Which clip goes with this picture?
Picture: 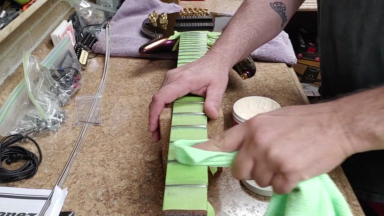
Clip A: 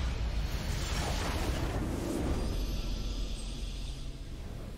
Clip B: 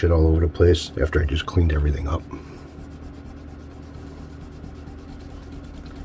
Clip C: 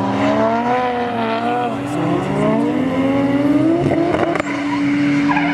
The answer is B